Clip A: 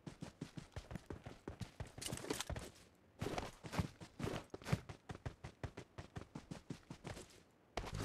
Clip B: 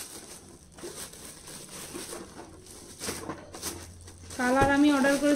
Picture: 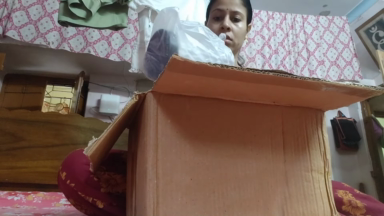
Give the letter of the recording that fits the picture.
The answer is B